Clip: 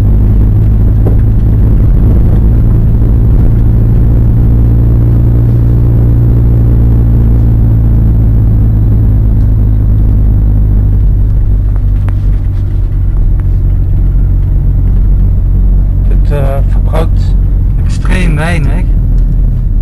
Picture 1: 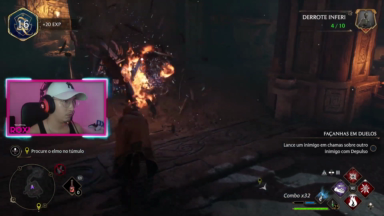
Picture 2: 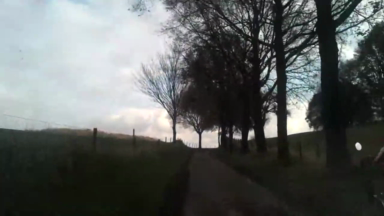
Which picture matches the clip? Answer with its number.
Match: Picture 2